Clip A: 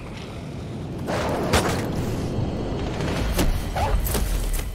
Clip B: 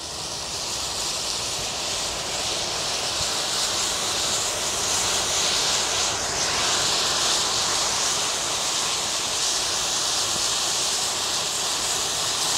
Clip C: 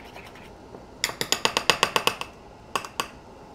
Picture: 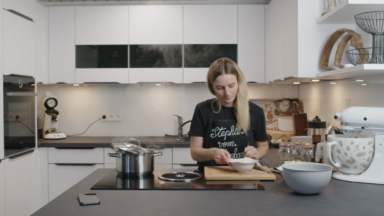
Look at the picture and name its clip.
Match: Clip C